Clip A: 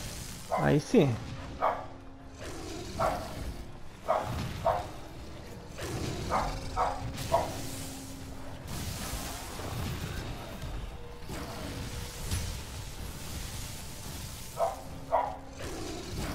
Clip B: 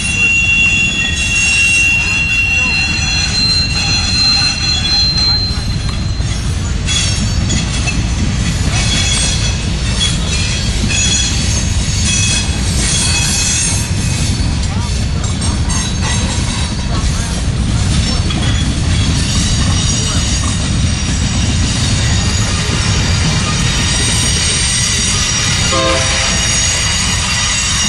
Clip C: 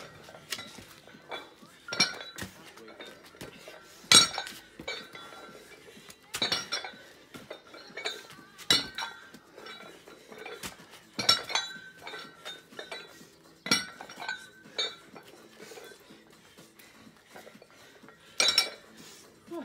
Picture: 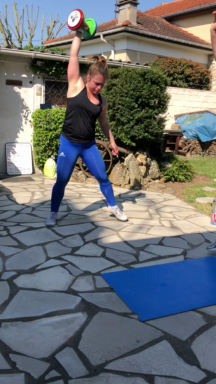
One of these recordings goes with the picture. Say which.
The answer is C